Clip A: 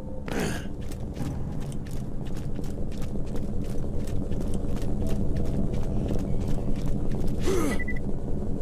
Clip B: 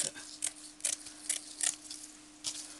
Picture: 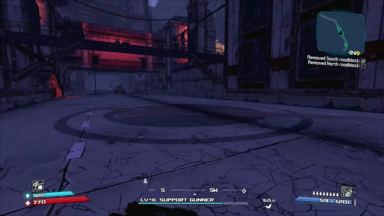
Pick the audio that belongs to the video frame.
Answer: A